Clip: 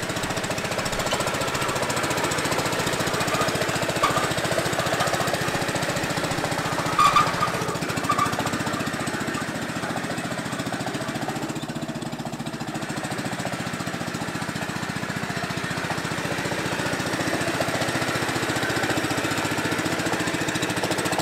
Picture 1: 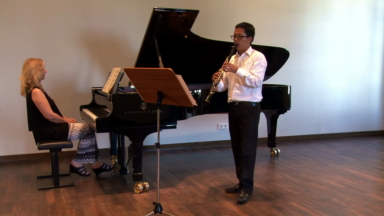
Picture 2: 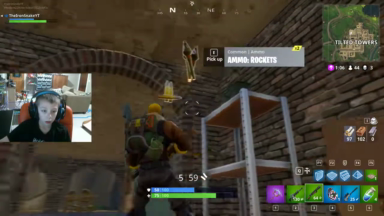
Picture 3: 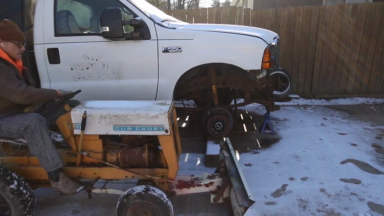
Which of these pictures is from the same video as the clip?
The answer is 3